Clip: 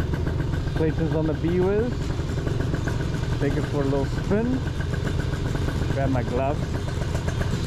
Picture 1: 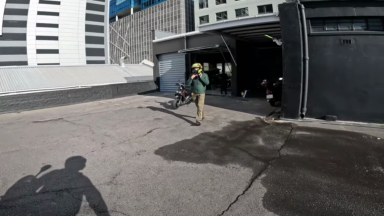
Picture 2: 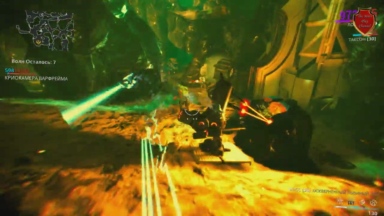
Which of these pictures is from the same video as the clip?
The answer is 1